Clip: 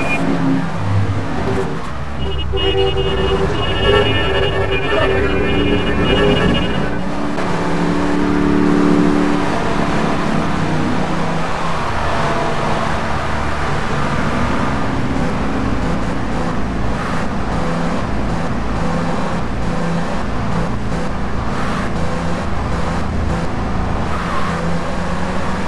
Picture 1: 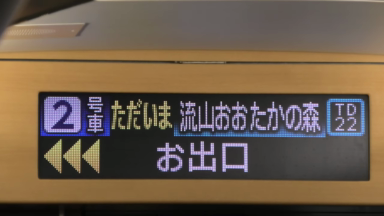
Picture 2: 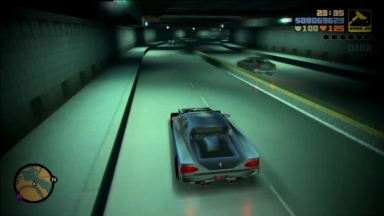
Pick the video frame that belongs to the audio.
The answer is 2